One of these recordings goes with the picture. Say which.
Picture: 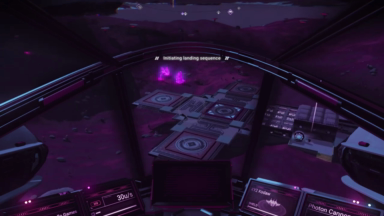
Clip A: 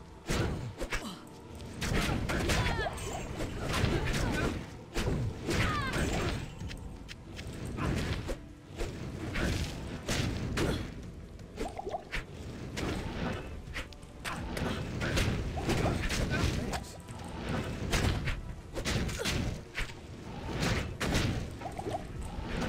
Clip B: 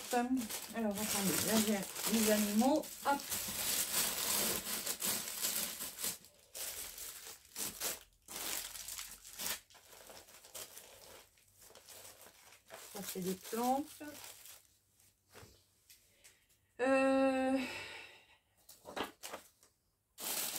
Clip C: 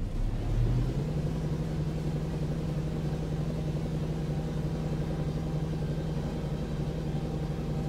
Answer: C